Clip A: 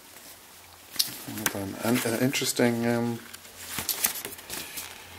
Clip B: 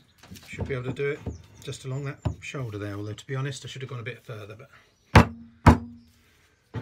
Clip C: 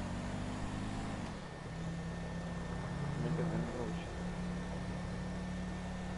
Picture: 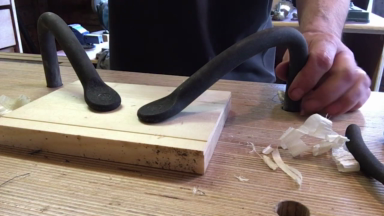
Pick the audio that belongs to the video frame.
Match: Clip B